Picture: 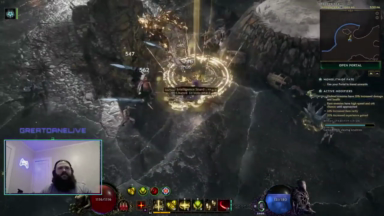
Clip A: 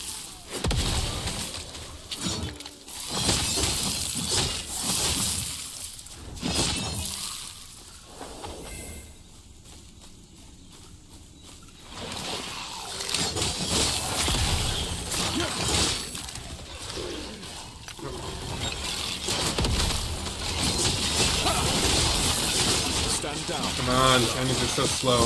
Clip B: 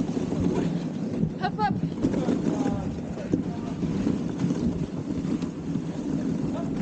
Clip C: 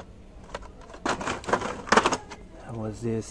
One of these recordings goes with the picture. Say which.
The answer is A